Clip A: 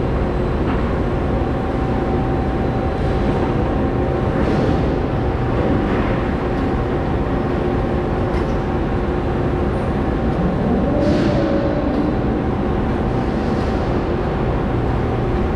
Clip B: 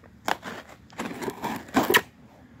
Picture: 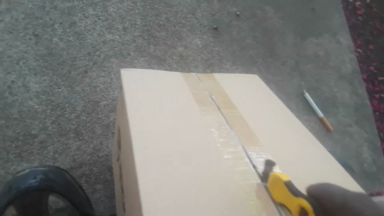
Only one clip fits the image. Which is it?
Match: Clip B